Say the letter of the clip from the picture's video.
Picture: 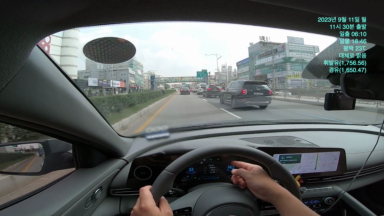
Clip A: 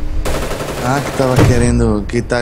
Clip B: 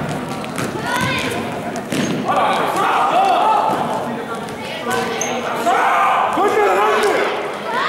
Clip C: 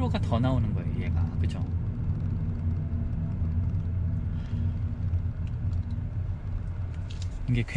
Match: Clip C